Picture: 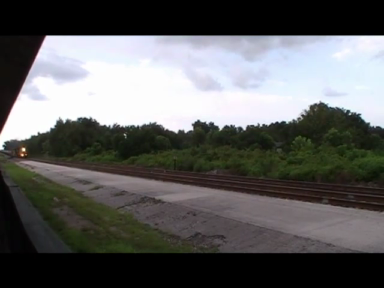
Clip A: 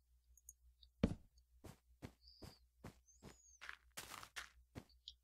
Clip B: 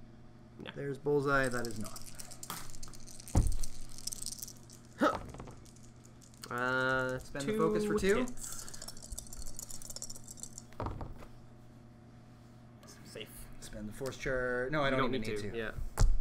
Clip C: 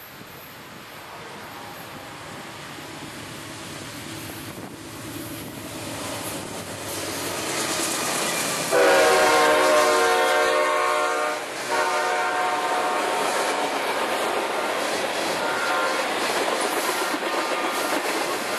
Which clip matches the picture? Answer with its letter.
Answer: C